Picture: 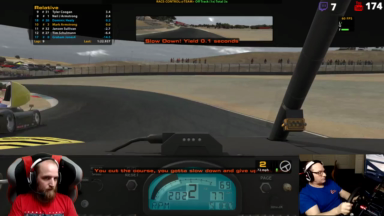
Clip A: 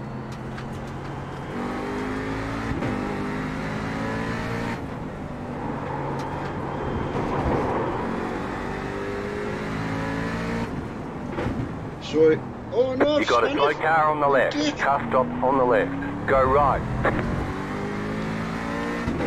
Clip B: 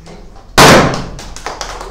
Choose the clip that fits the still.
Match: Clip A